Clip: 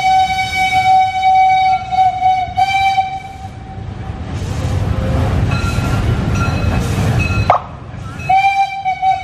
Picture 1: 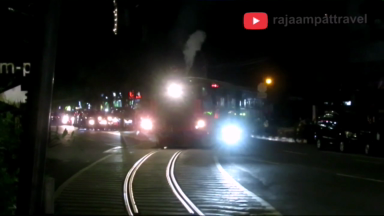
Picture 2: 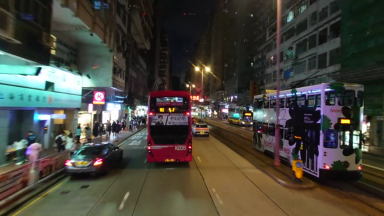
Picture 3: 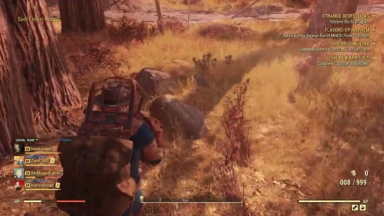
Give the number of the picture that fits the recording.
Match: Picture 1